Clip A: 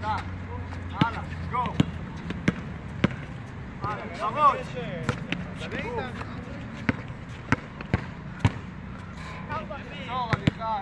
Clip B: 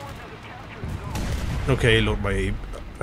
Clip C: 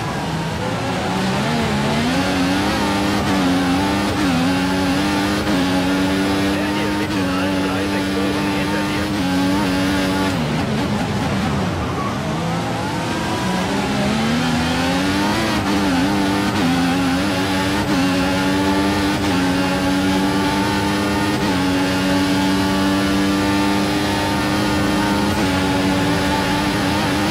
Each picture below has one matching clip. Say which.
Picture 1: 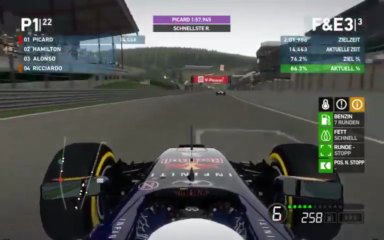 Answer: C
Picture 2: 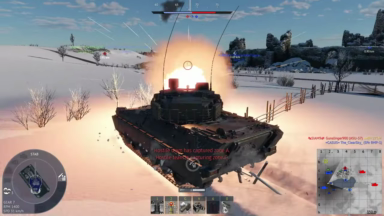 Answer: B